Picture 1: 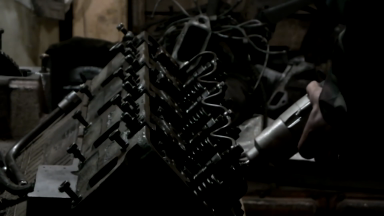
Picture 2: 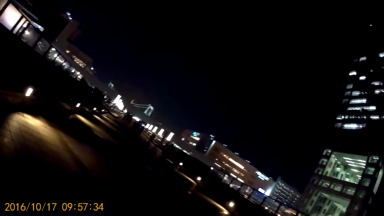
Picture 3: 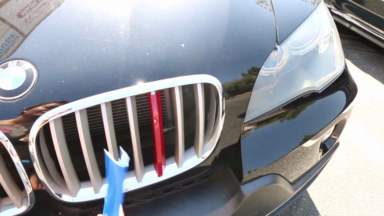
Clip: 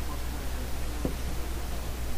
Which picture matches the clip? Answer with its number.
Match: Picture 3